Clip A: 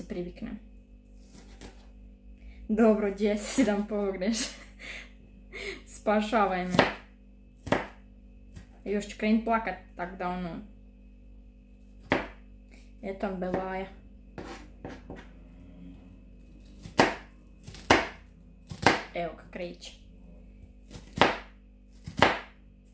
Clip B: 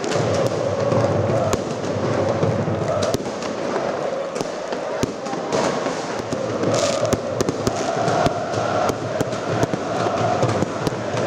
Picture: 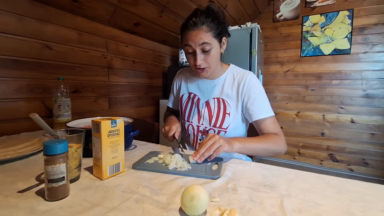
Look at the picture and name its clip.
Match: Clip A